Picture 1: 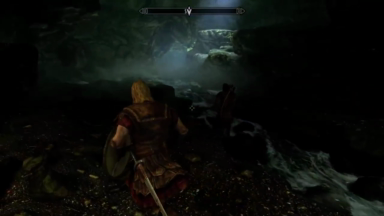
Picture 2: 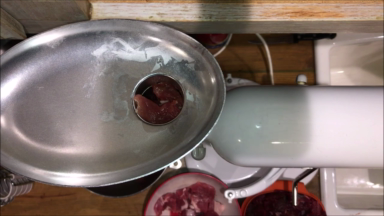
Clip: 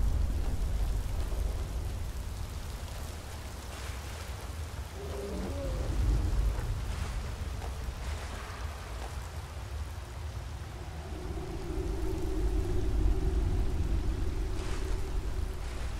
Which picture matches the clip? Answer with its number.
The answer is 1